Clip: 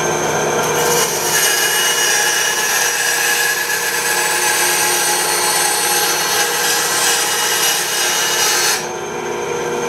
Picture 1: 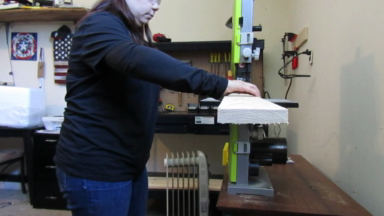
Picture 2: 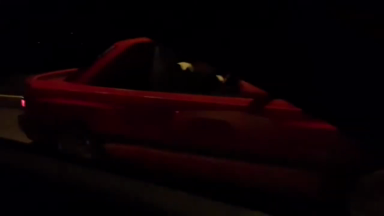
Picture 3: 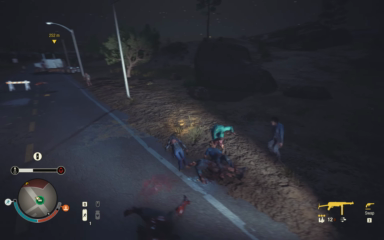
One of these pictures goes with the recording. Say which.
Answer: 1